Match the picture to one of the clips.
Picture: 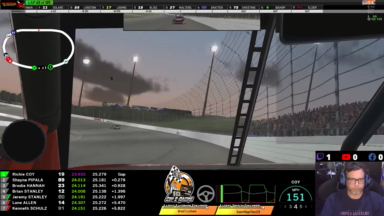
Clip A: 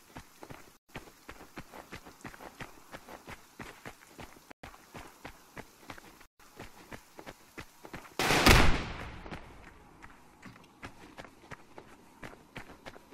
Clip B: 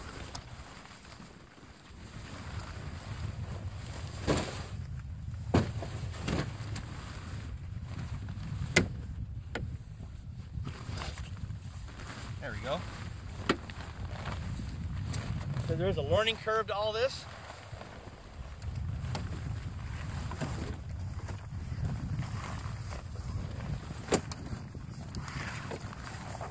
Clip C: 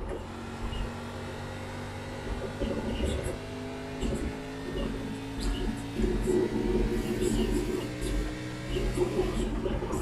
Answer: C